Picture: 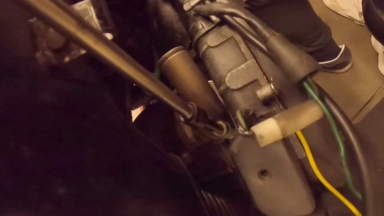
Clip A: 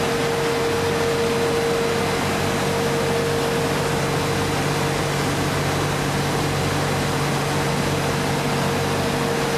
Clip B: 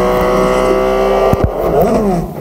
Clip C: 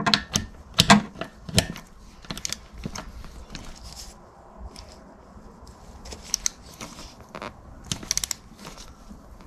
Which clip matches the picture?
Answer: C